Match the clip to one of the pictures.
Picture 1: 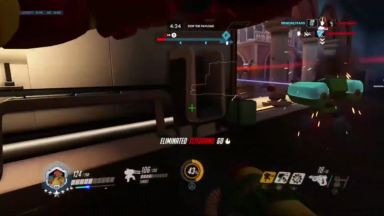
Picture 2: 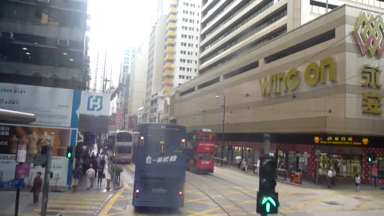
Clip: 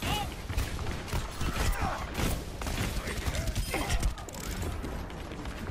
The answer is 1